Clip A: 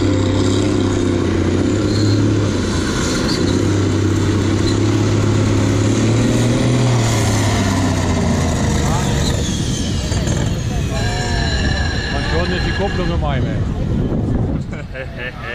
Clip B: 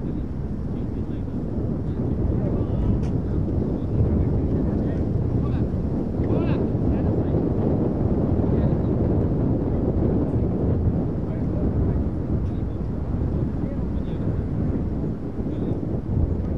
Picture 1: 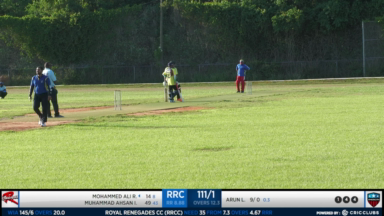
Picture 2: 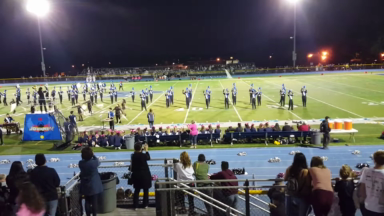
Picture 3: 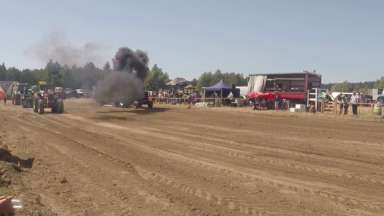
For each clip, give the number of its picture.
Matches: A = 3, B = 1